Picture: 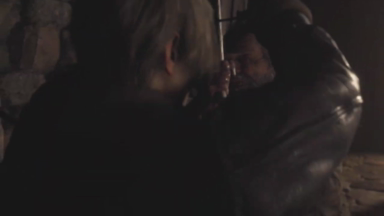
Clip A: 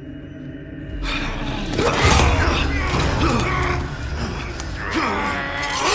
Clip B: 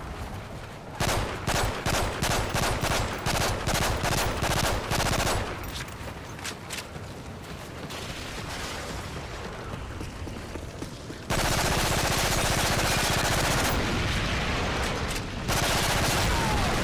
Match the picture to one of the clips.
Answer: A